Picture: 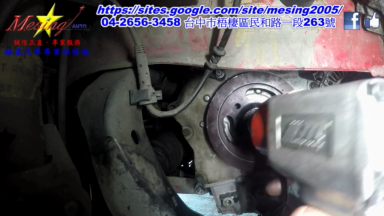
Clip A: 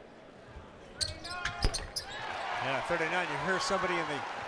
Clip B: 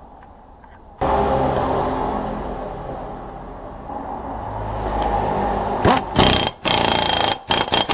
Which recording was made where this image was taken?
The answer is B